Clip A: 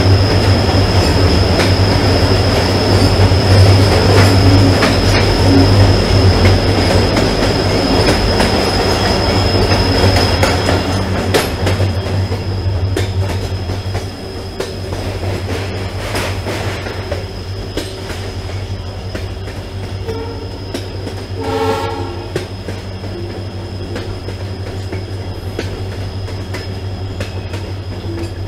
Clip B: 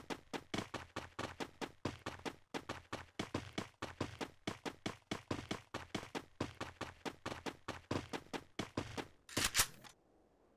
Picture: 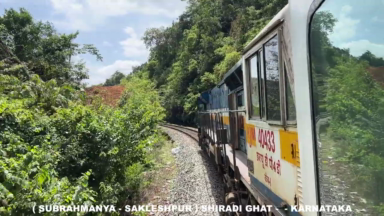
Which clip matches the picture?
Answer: A